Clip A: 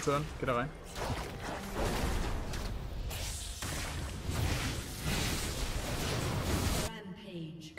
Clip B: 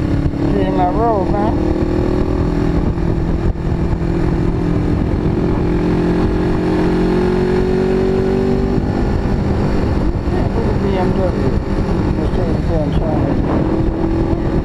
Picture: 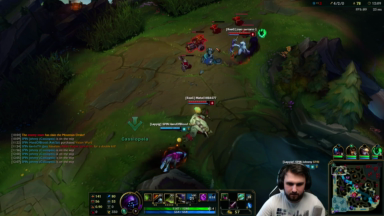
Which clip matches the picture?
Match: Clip A